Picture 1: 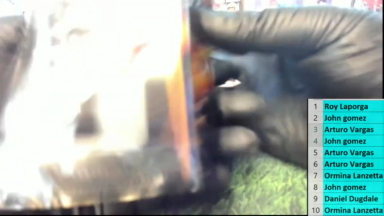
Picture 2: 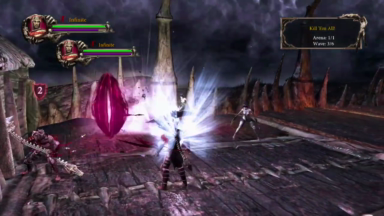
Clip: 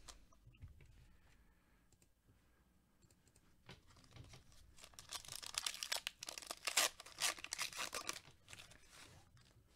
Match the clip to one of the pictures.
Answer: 1